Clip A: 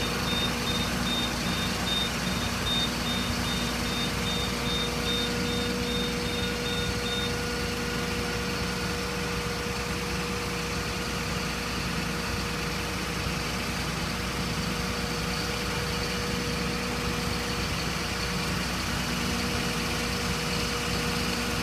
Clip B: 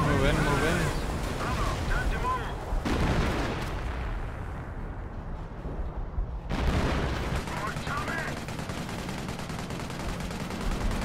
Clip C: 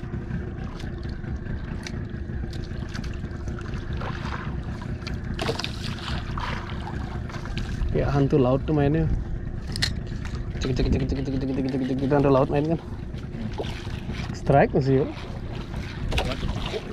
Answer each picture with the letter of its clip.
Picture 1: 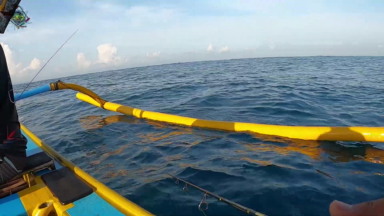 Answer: C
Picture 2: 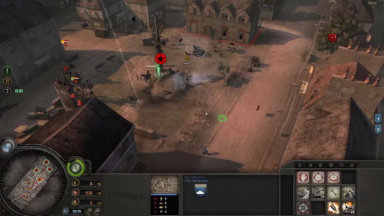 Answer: B